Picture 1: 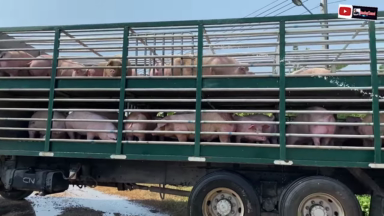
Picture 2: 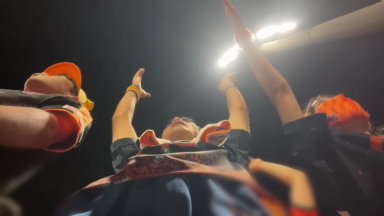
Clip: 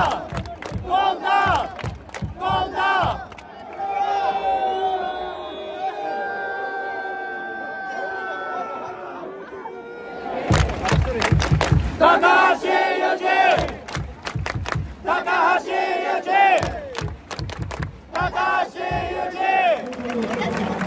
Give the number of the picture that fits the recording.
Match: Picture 2